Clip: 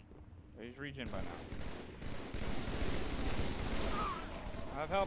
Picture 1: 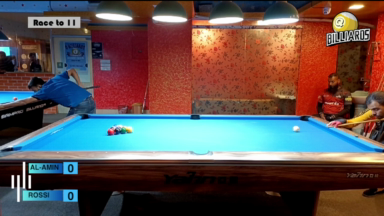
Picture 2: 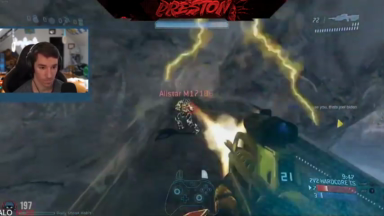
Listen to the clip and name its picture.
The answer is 2